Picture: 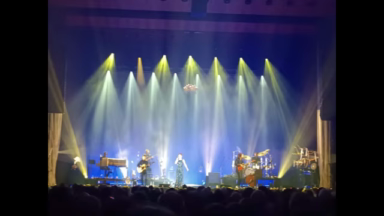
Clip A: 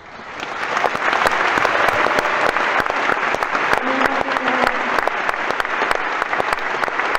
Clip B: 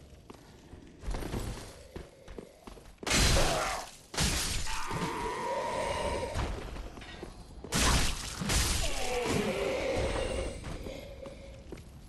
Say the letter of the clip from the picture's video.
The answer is A